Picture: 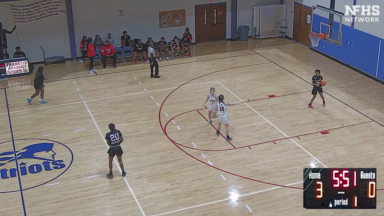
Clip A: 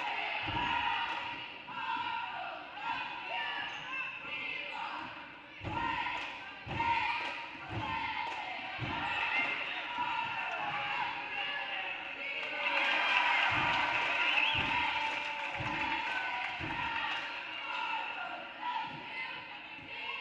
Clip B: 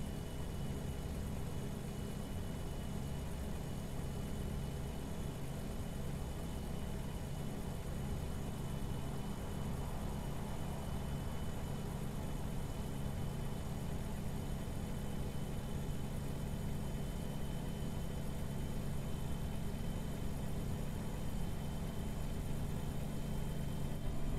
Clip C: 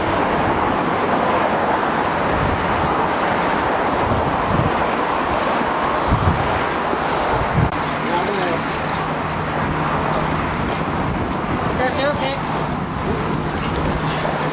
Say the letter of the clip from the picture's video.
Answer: A